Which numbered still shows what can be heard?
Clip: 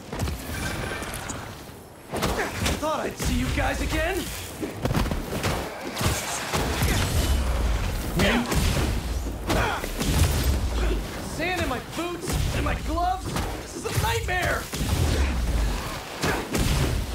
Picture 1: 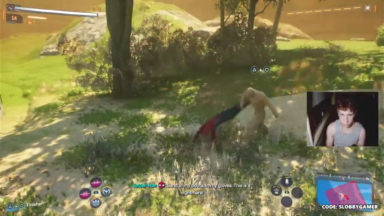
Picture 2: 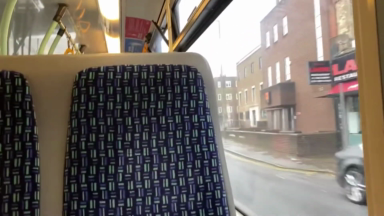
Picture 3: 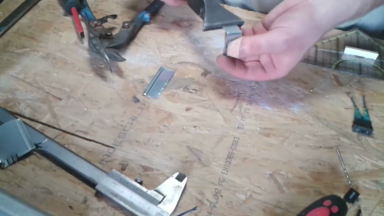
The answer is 1